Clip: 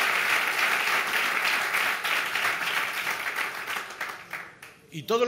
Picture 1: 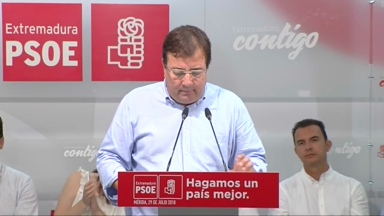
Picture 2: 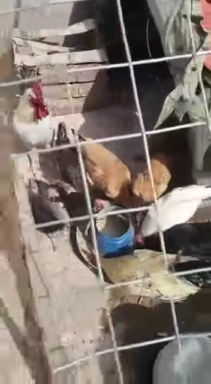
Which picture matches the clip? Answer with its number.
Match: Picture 1